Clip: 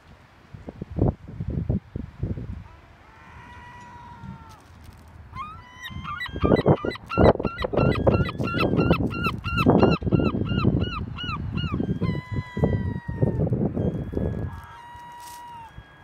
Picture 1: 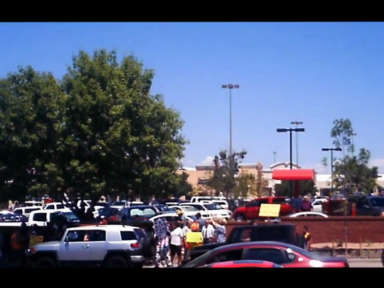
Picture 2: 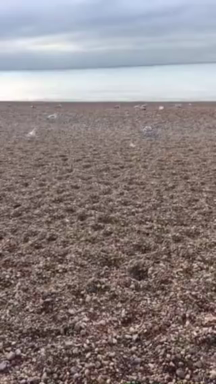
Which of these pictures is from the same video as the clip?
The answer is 2